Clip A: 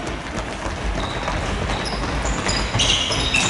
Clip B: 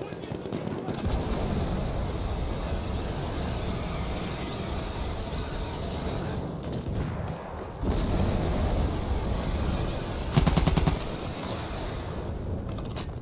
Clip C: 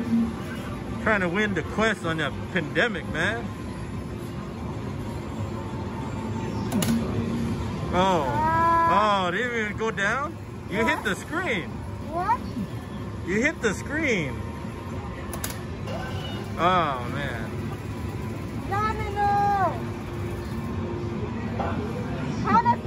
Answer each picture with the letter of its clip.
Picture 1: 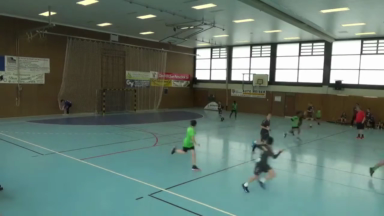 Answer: A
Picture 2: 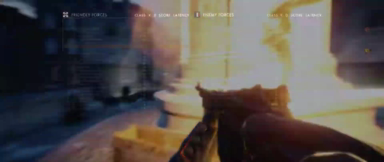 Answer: B